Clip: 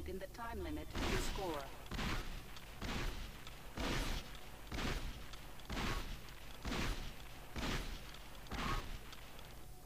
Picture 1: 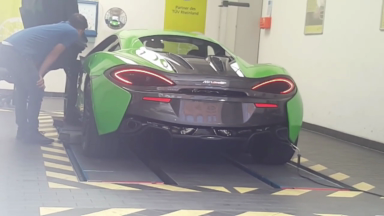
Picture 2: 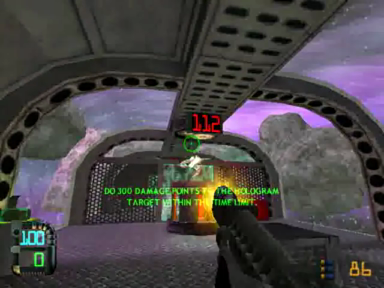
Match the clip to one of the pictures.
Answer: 2